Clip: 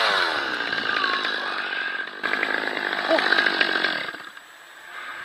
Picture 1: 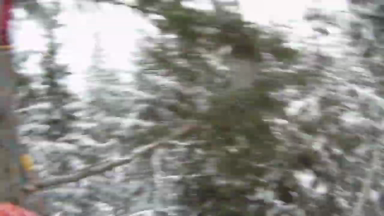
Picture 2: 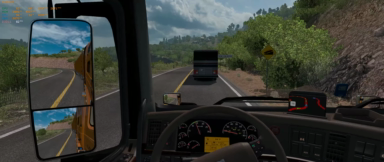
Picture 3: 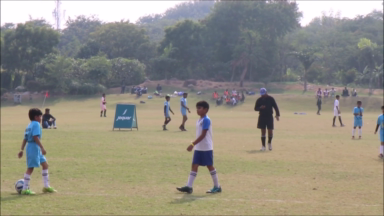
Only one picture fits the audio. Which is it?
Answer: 1